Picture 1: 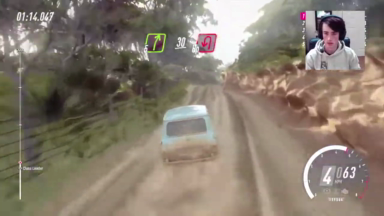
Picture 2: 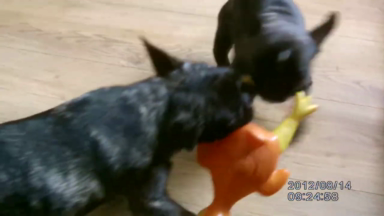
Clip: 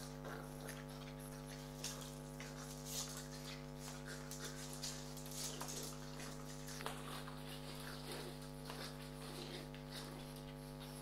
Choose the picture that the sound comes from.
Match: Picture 2